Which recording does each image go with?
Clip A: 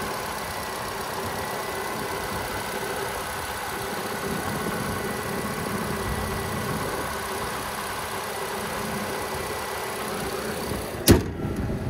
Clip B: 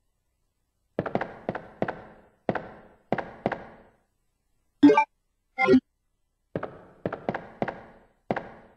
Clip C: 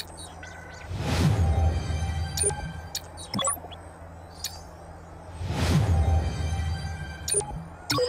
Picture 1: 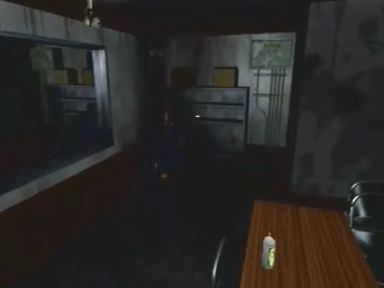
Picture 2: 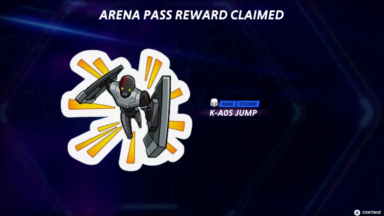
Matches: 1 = B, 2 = C